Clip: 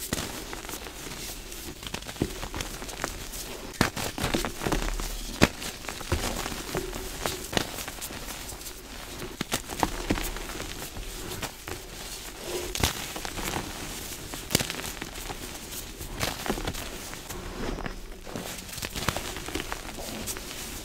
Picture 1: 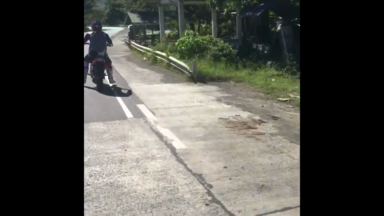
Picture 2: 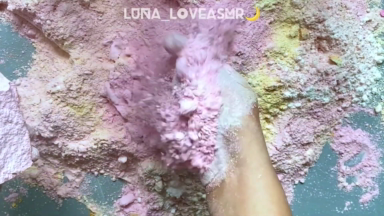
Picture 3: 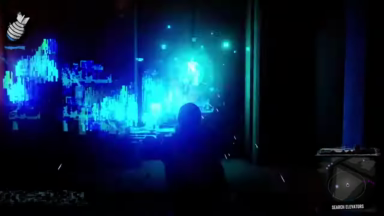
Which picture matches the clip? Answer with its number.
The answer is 2